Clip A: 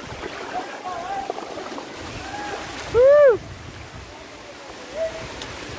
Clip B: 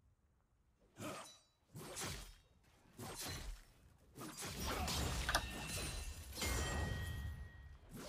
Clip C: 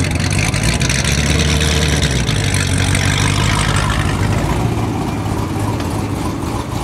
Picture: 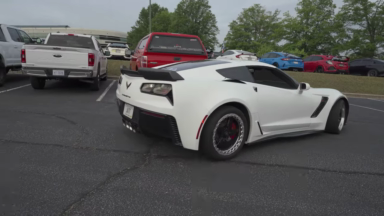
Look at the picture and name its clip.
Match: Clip C